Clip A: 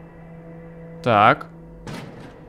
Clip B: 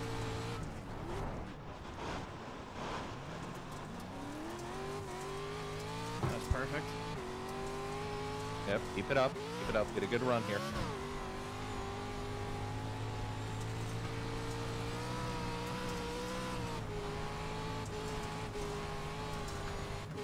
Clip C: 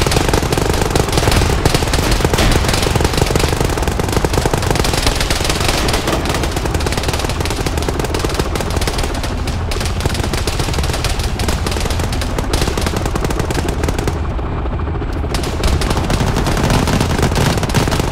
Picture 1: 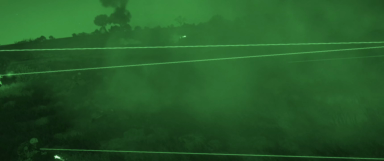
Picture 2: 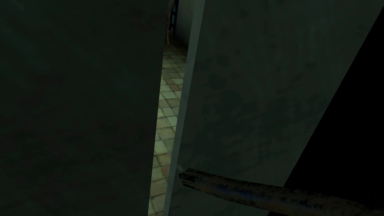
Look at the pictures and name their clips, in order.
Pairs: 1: C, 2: A